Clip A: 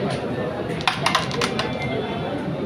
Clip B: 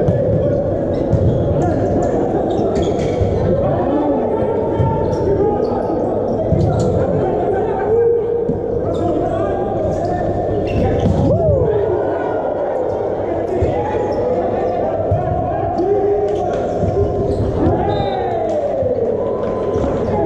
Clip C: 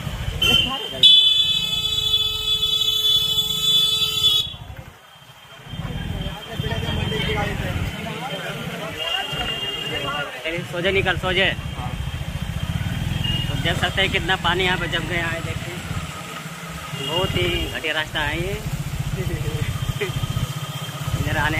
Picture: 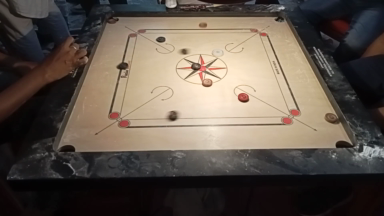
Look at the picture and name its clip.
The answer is A